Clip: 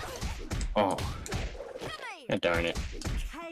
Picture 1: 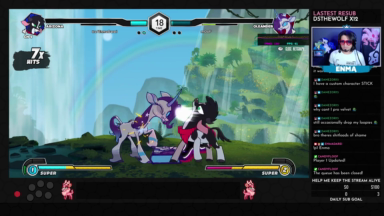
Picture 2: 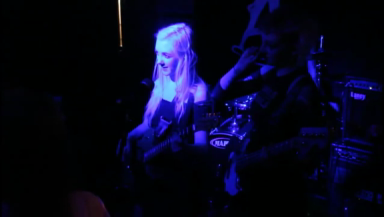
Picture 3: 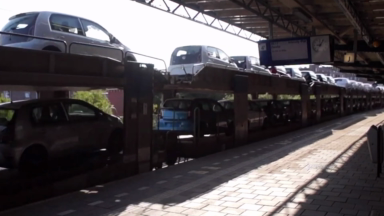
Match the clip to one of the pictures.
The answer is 1